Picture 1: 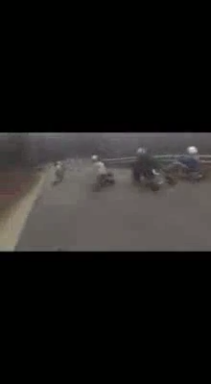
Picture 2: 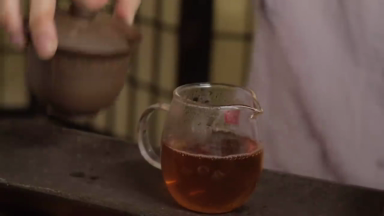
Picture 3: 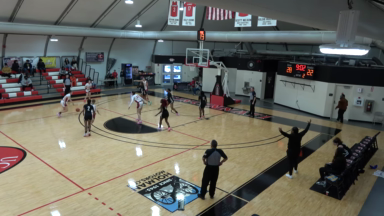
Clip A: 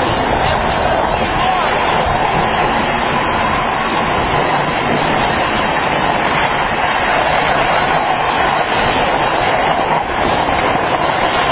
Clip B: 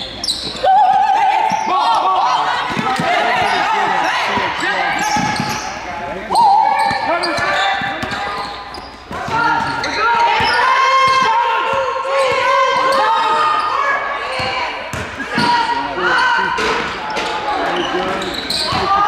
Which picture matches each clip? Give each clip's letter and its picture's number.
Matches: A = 1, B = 3